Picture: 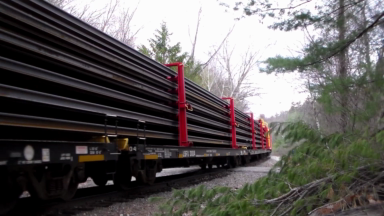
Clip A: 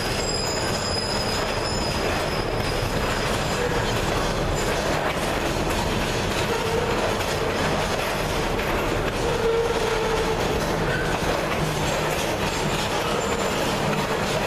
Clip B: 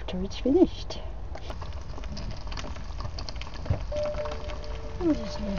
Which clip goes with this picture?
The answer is A